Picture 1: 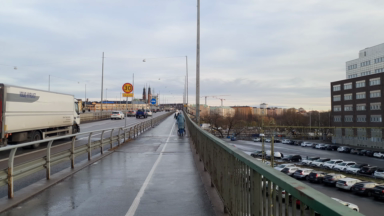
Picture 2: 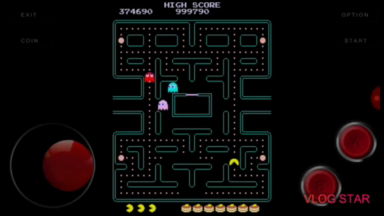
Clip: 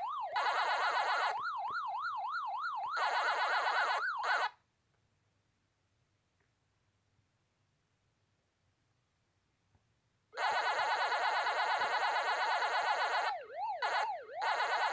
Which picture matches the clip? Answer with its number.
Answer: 2